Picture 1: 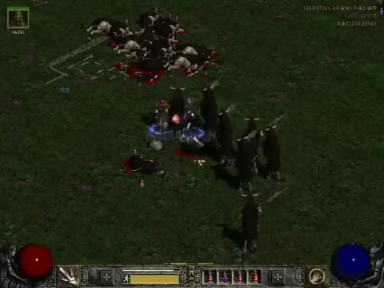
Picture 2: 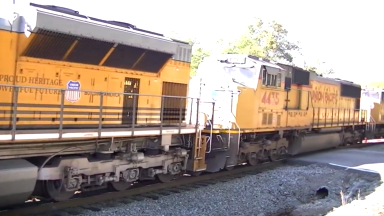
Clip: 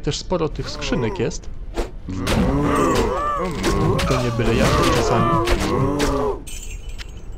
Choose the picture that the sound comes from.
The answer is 1